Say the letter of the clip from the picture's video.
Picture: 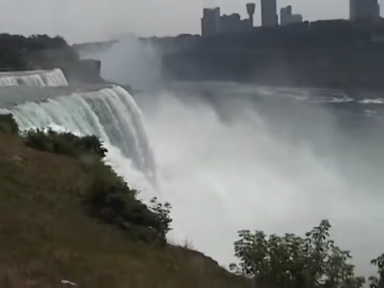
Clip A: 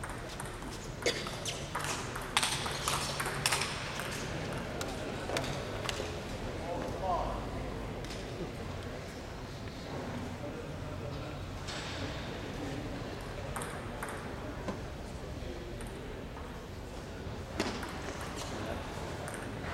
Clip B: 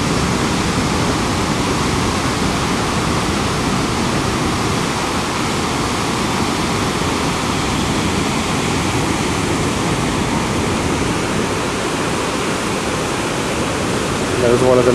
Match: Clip B